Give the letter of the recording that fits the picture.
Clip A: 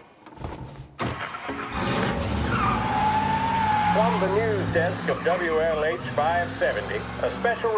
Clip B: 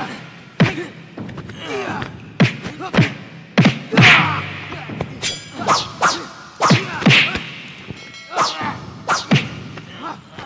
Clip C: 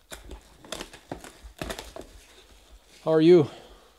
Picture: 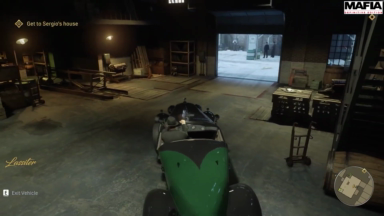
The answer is A